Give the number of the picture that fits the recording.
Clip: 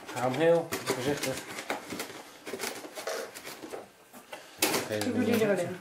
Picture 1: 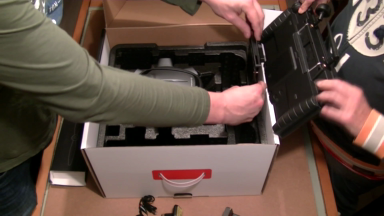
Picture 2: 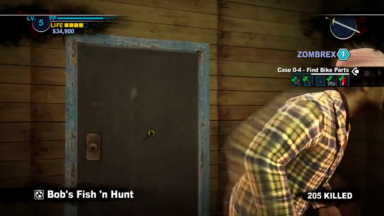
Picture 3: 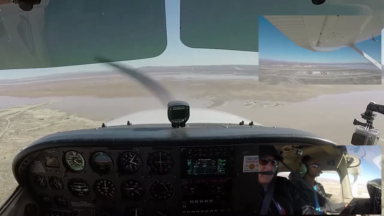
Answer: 1